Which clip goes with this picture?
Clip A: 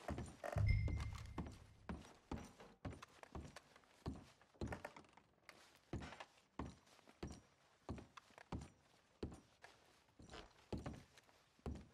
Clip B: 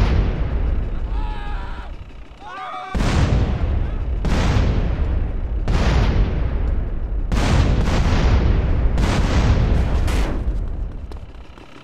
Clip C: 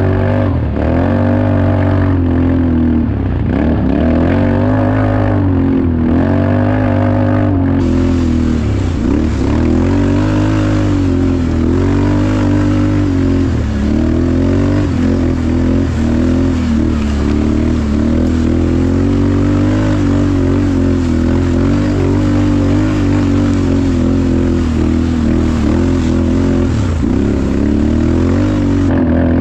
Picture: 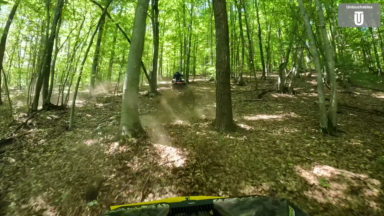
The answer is C